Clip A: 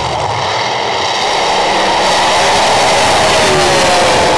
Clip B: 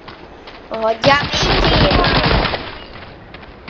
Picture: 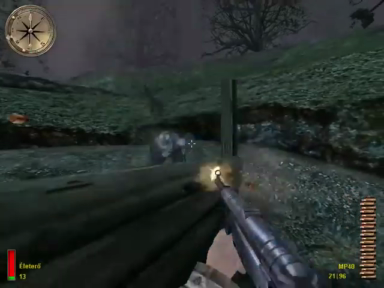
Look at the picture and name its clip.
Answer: B